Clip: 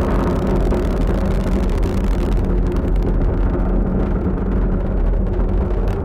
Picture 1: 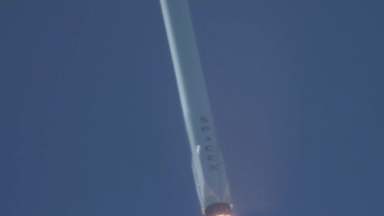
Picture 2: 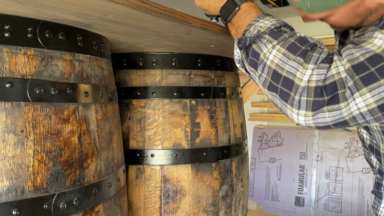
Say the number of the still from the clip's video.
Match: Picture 1